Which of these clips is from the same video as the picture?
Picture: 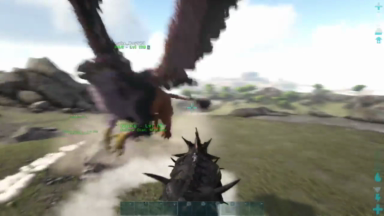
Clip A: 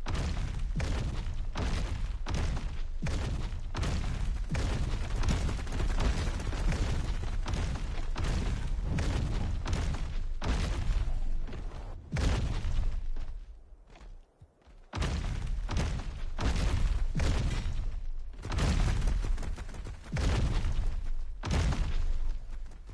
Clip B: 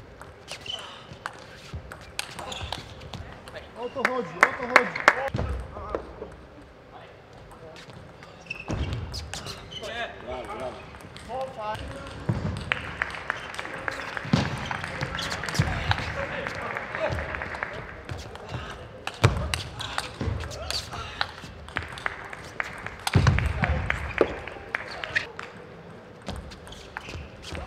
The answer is A